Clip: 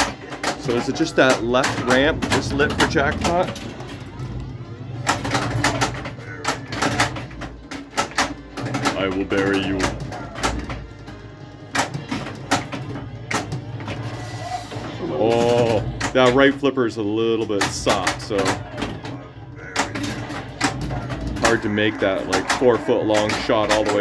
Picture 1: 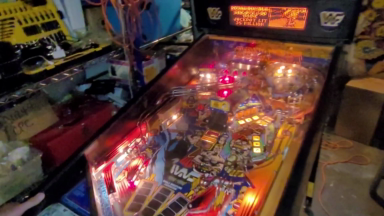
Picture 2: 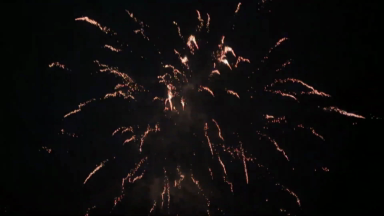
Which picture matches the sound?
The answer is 1